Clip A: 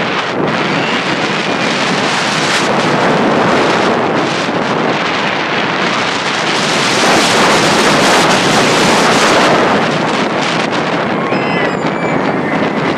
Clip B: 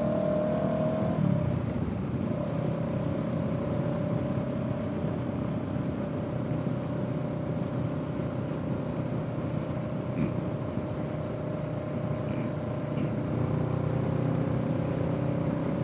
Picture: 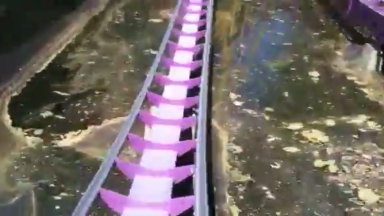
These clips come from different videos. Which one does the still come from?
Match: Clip A